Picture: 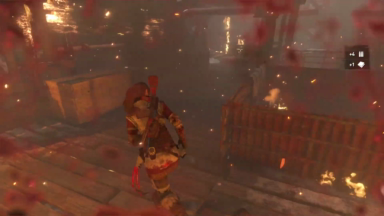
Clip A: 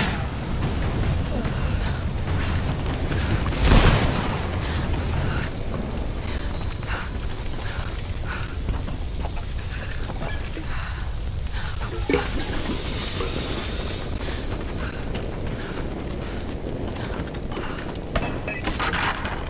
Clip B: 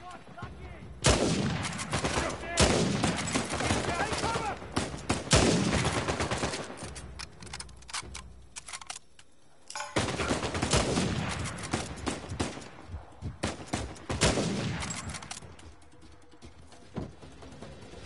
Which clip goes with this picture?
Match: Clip A